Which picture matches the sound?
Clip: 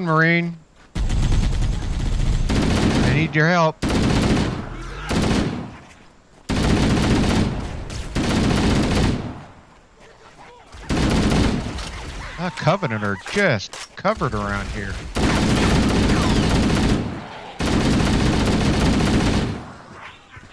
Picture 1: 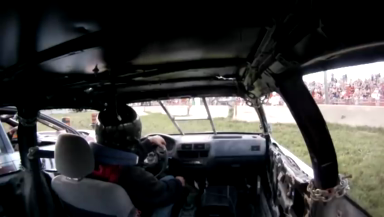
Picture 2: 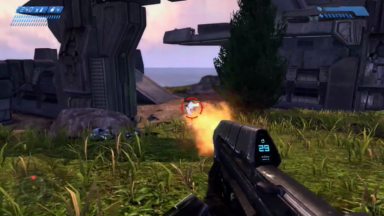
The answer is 2